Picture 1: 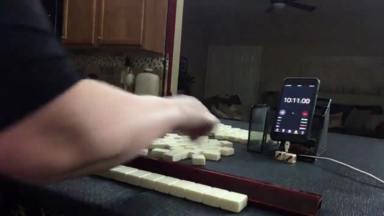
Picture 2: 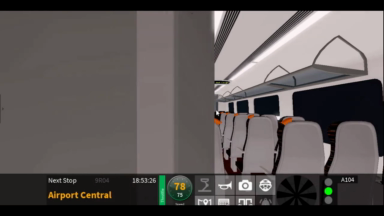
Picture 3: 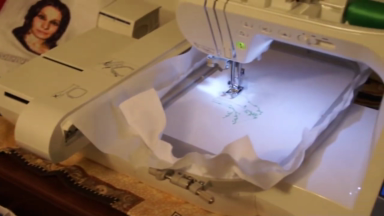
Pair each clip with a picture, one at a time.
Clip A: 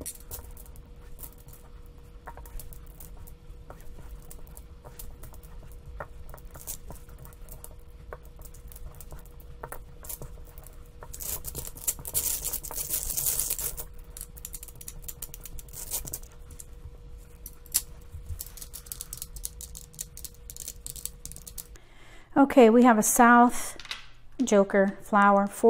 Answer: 1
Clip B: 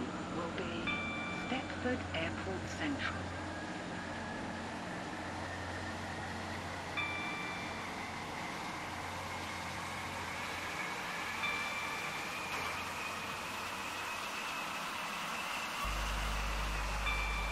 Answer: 2